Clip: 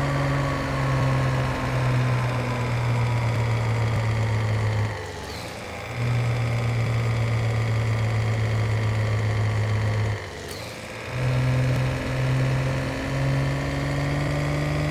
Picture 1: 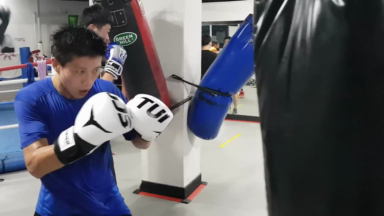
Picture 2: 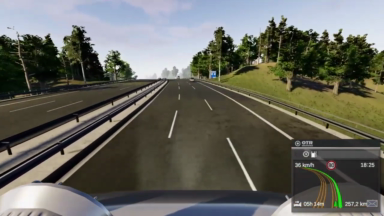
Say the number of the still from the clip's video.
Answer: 2